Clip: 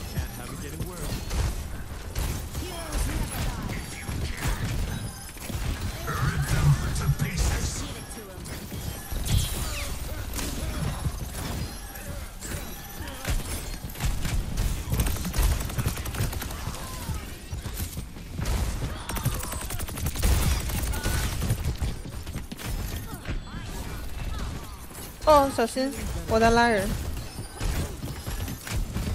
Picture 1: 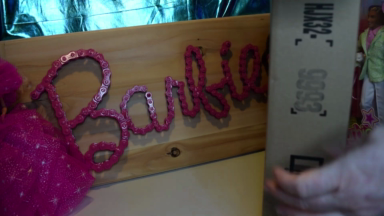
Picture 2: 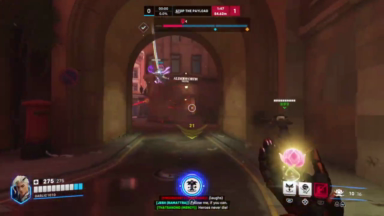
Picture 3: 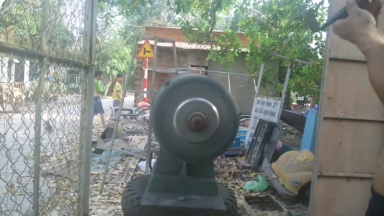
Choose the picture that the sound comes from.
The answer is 2